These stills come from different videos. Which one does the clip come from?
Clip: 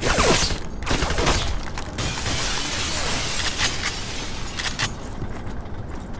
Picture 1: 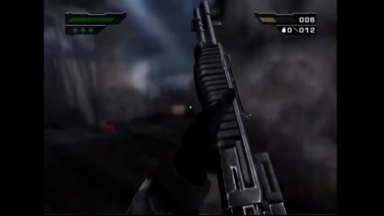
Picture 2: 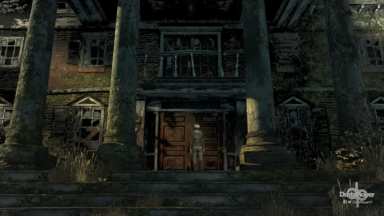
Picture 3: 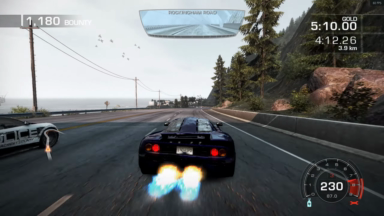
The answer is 1